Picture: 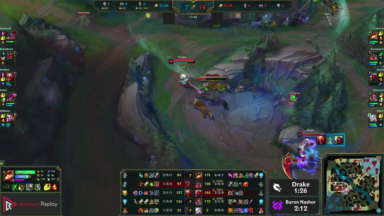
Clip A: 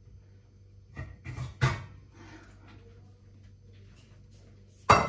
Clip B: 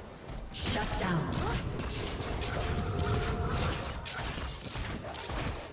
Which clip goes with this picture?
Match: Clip B